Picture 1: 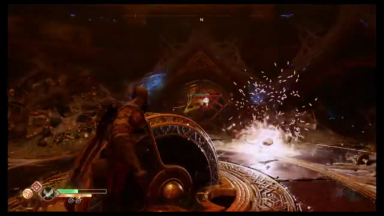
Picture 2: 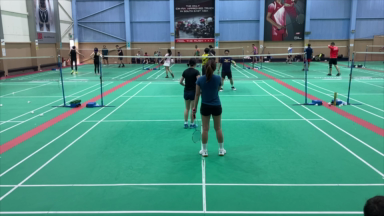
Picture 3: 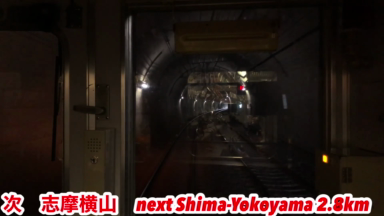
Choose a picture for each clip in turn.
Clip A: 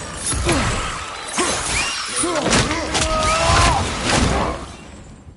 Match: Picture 1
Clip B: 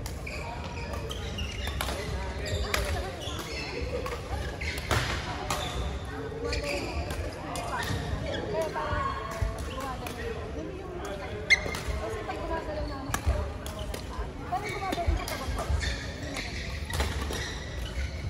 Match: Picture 2